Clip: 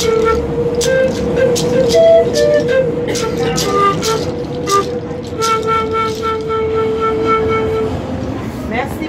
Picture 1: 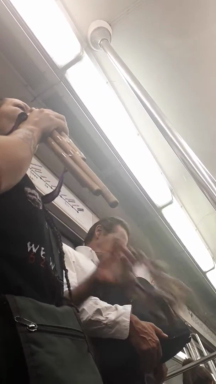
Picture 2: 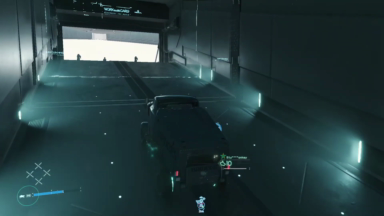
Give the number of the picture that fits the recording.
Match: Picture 1